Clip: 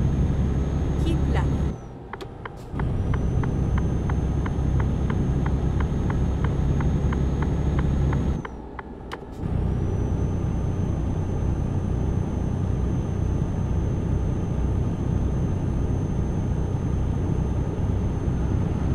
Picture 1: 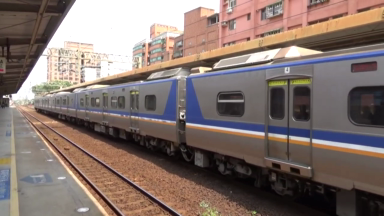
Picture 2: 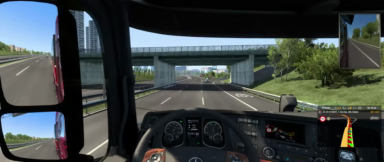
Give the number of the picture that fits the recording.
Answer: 2